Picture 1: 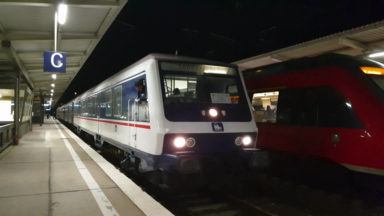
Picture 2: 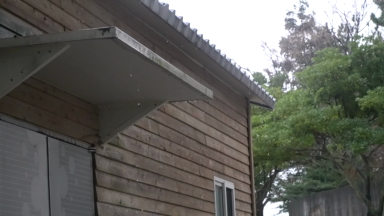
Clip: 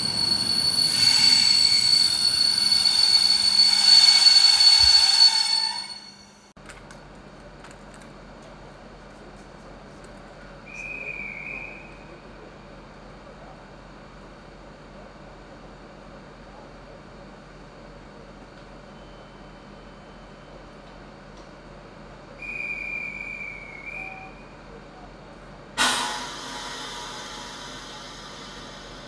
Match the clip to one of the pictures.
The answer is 1